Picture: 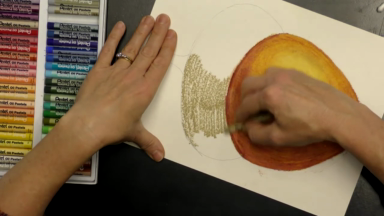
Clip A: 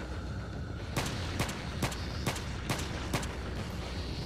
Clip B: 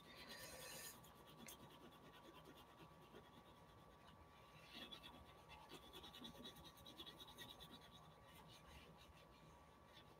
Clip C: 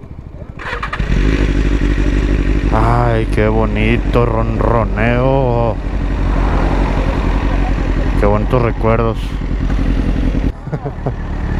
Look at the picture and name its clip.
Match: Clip B